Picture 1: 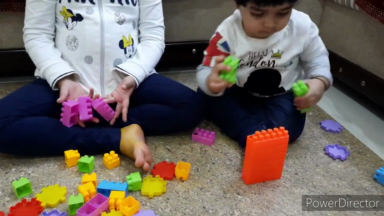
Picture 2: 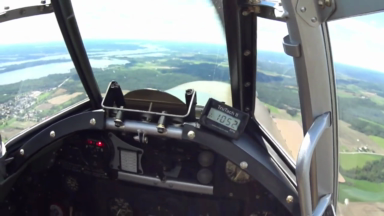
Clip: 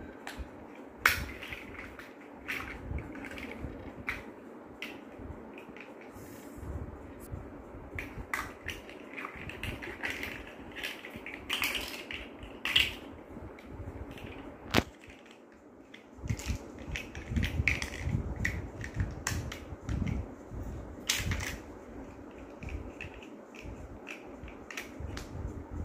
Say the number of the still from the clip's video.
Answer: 1